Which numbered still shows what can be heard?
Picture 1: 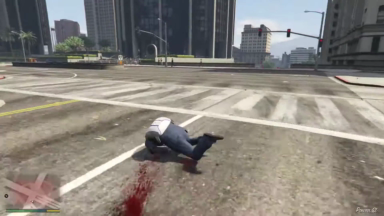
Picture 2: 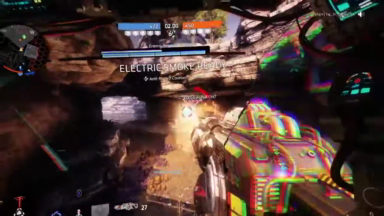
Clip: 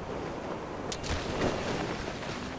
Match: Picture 1